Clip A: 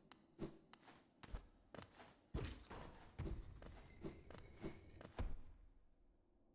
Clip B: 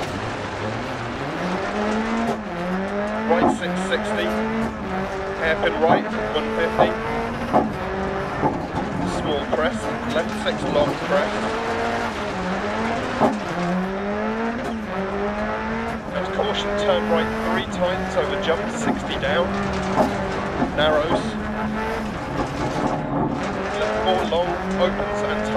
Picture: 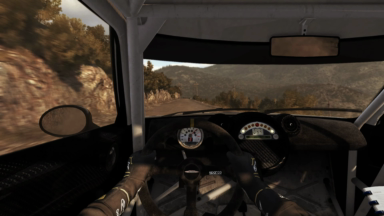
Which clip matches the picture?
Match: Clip B